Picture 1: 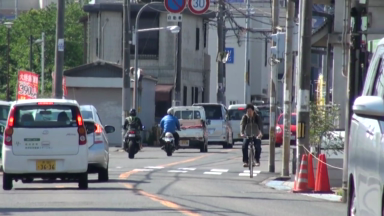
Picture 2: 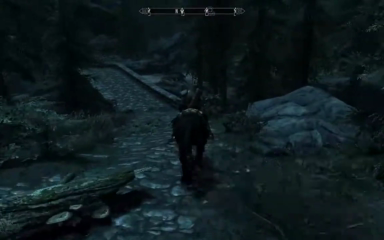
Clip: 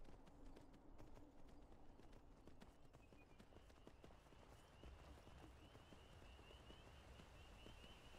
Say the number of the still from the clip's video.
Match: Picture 2